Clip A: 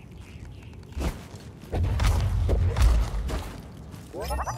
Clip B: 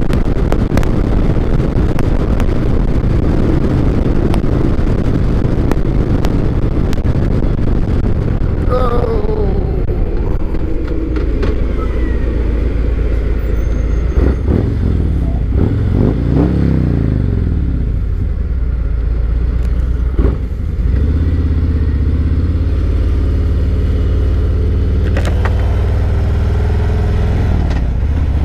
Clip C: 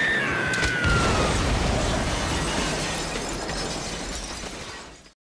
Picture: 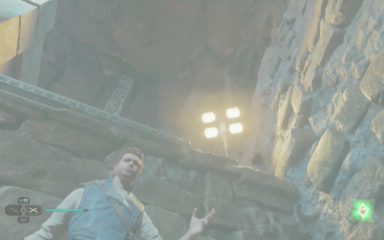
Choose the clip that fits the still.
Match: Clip A